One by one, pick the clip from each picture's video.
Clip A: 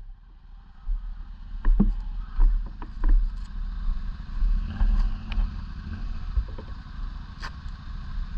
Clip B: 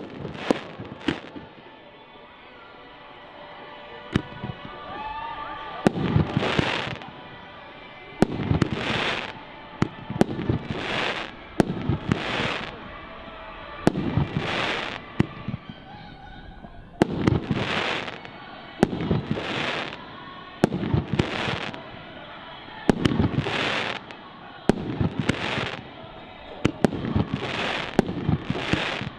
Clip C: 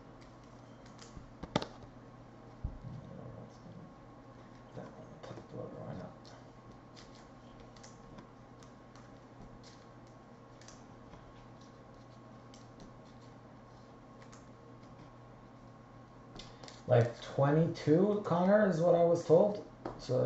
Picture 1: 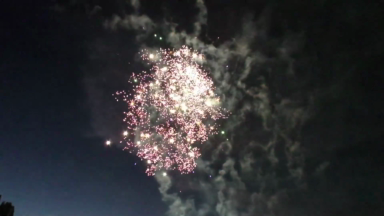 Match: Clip B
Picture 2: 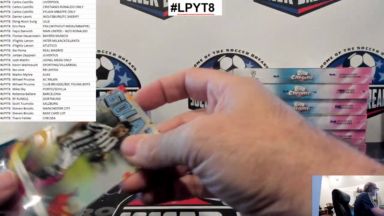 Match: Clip C